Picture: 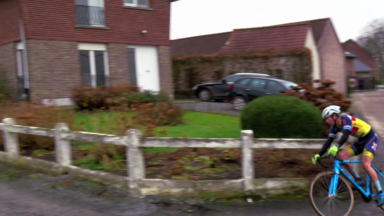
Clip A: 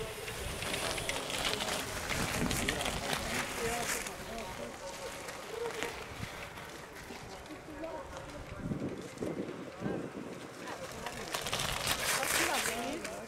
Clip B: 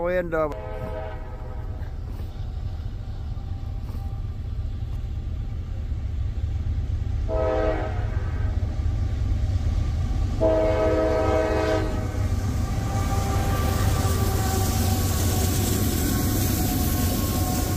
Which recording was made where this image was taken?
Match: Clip A